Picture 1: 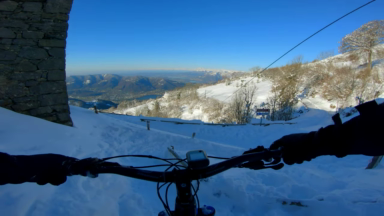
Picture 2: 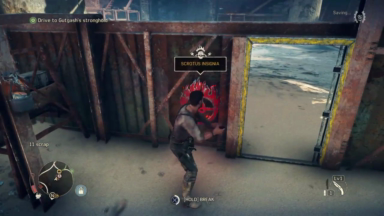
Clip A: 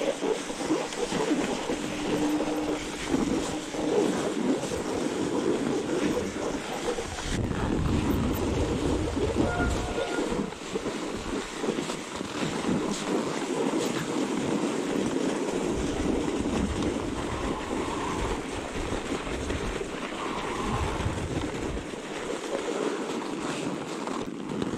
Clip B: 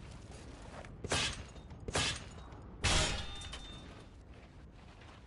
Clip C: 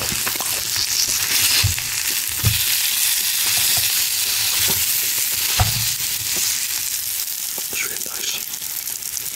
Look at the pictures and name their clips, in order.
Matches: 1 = A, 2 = B